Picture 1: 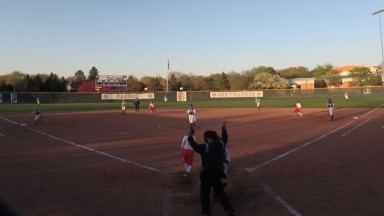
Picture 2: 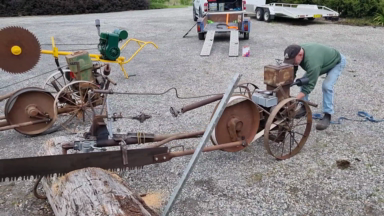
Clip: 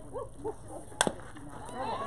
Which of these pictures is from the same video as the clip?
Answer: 1